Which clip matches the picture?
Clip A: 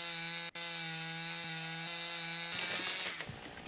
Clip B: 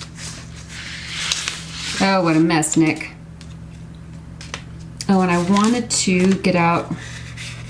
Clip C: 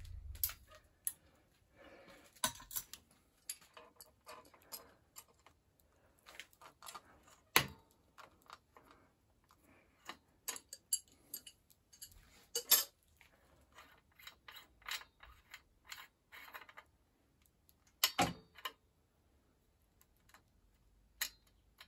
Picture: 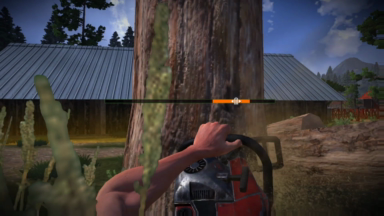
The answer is A